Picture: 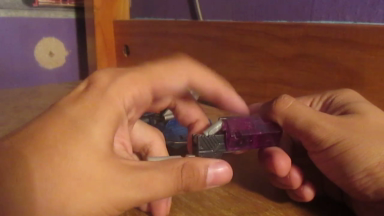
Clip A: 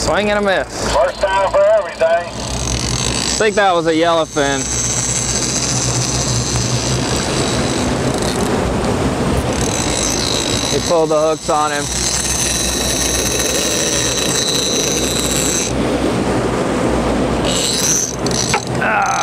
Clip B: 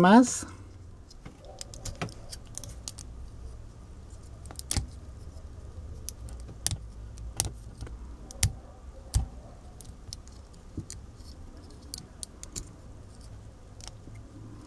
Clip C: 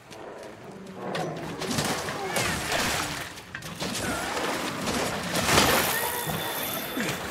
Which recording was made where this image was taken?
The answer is B